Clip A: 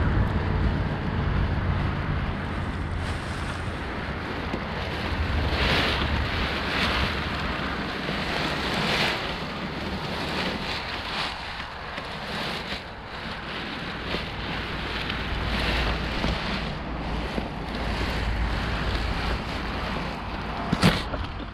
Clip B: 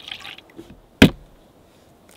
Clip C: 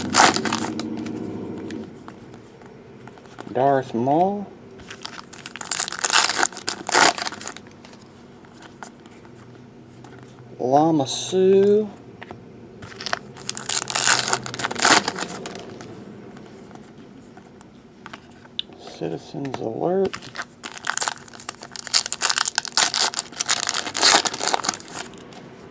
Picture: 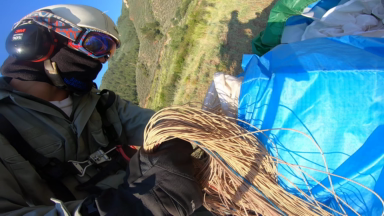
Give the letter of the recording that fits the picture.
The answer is A